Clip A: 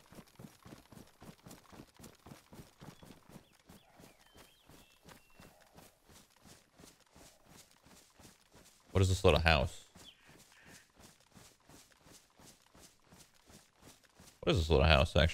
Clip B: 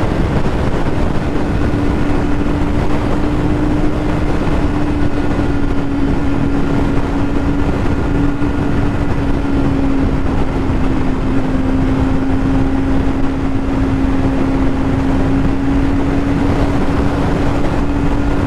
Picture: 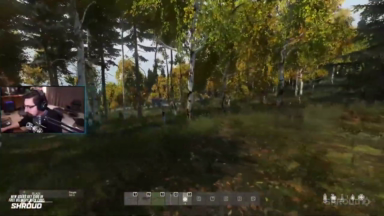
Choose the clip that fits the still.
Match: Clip A